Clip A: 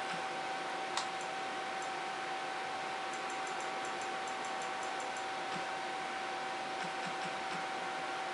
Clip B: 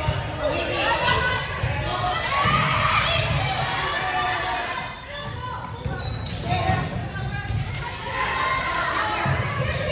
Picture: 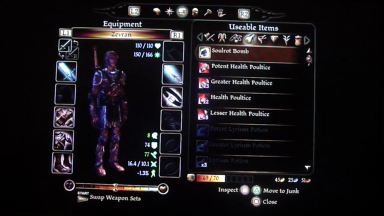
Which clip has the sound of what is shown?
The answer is A